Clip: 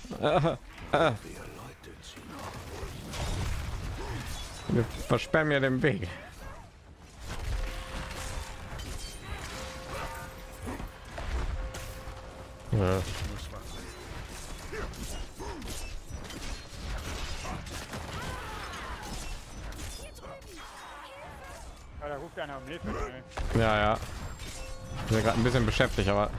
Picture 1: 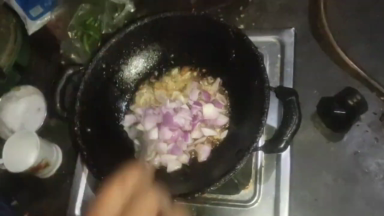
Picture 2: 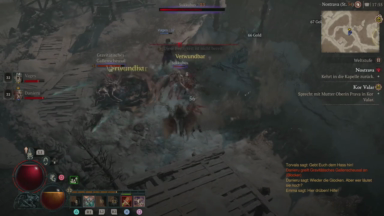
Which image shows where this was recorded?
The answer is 2